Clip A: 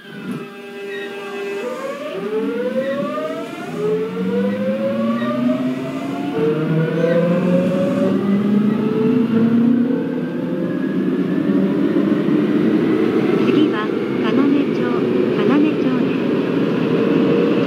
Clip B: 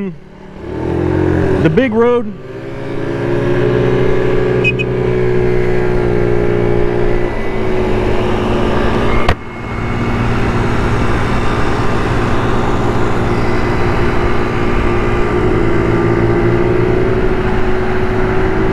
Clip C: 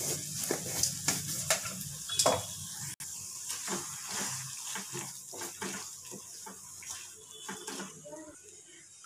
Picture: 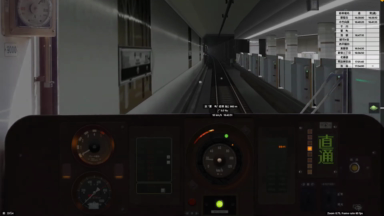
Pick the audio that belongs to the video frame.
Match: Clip A